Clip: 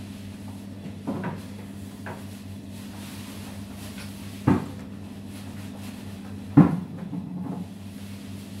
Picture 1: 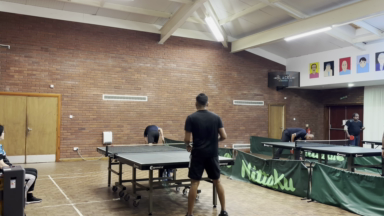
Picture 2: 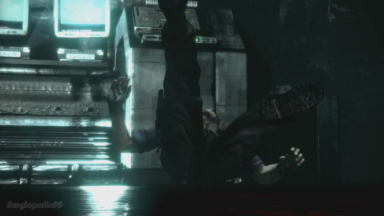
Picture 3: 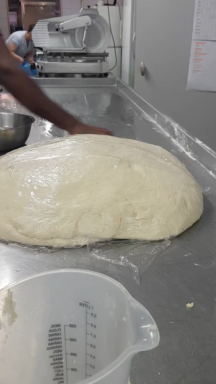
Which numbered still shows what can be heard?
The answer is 3